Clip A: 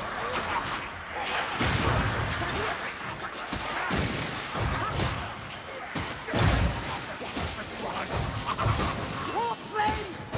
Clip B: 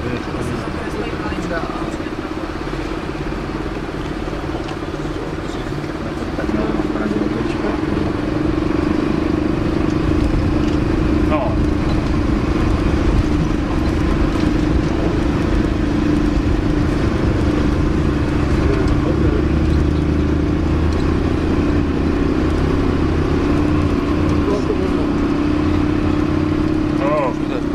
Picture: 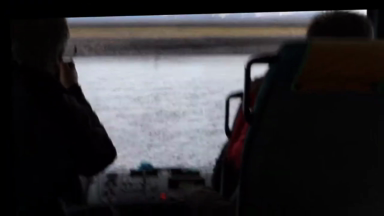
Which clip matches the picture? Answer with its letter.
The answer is B